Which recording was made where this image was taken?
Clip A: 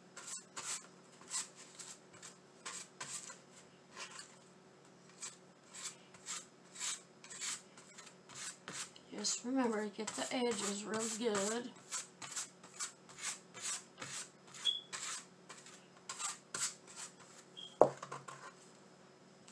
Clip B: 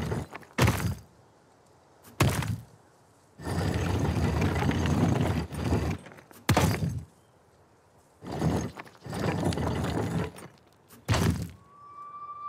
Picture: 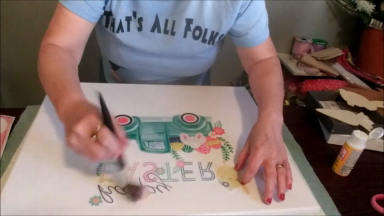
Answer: A